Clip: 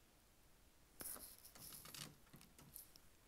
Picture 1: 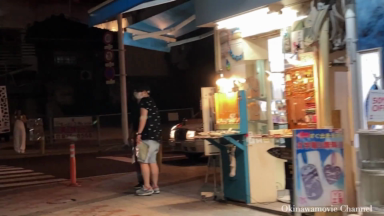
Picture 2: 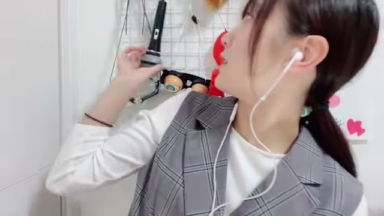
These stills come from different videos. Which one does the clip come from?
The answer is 2